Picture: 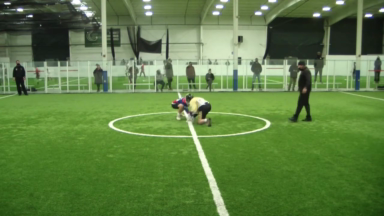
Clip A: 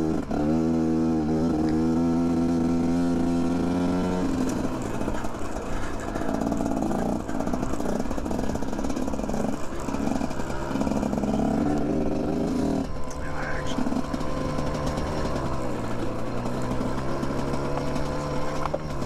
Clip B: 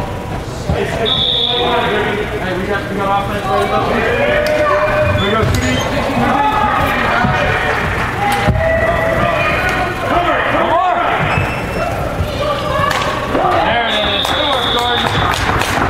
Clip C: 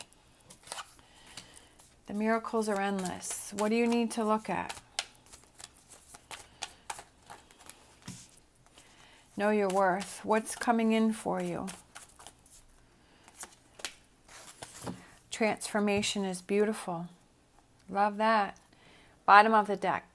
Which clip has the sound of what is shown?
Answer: B